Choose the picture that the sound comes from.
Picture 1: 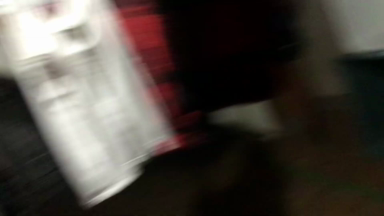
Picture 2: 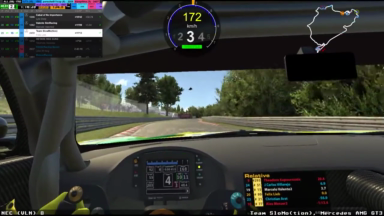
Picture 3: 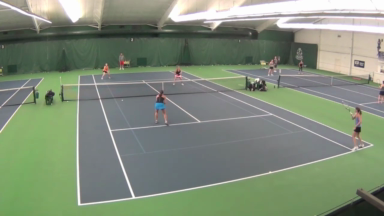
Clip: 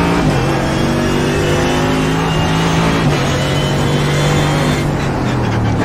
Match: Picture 2